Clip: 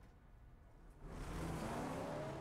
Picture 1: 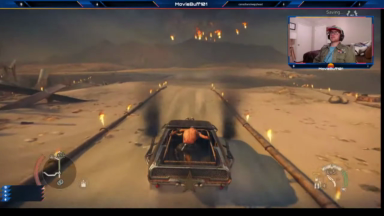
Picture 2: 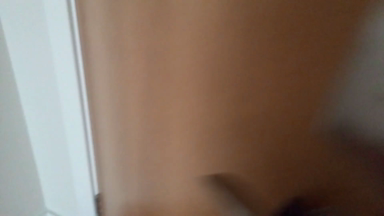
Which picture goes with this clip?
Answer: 1